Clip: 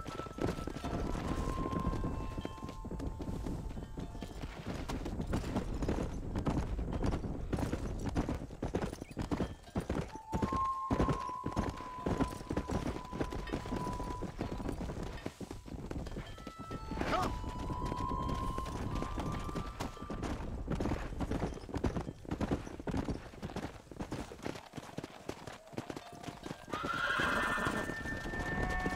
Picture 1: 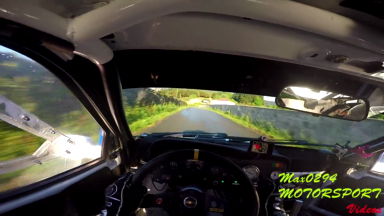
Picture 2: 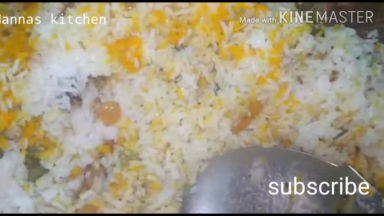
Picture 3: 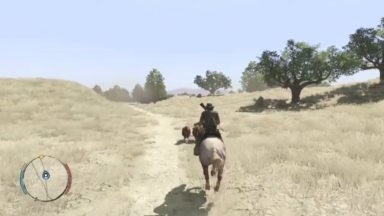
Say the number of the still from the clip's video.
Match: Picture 3